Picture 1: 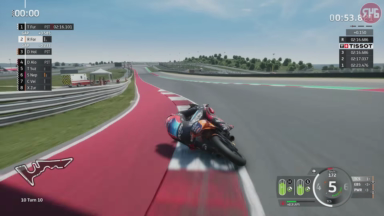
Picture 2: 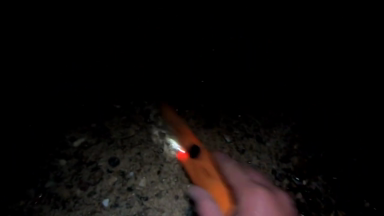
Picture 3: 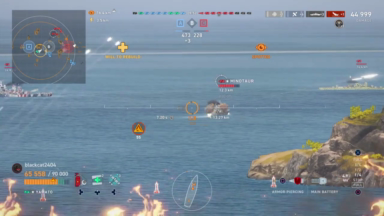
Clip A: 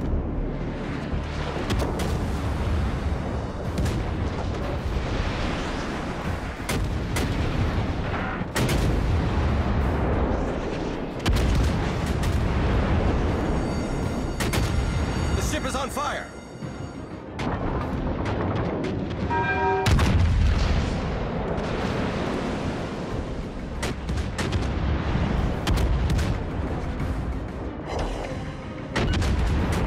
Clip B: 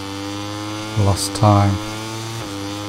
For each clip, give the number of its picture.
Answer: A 3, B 1